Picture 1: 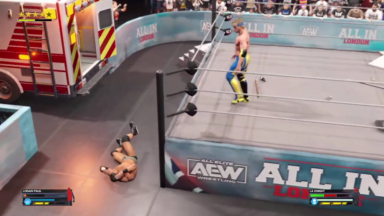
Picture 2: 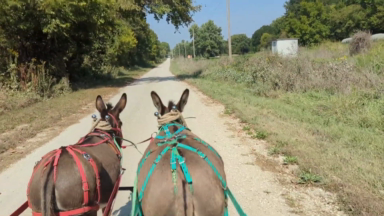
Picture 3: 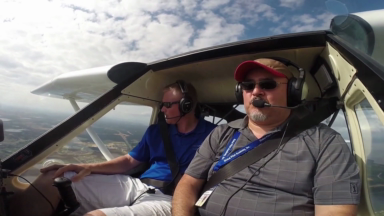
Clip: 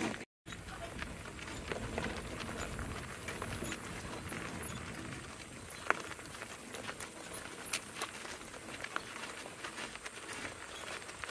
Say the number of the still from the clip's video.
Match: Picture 2